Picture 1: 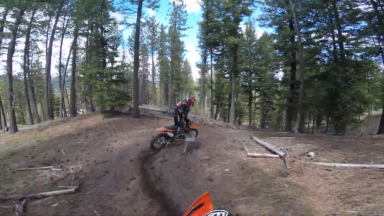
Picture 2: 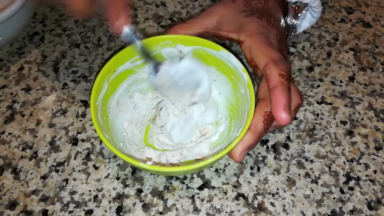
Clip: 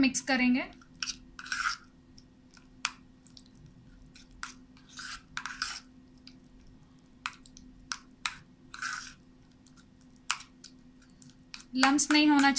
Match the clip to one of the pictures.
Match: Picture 2